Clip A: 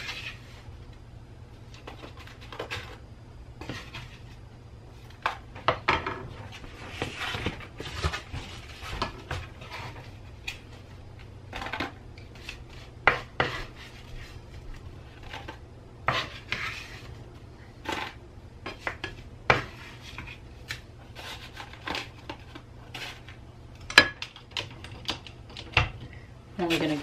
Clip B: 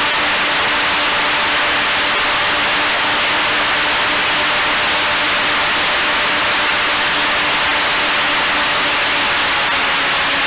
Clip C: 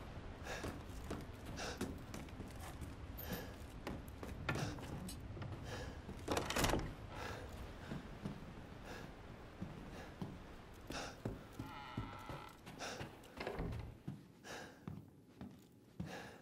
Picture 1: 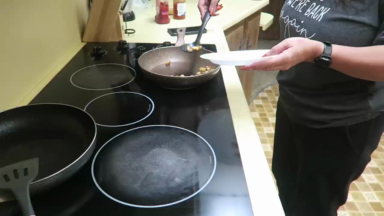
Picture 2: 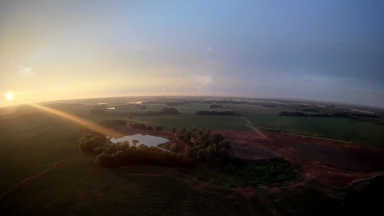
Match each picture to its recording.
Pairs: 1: A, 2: B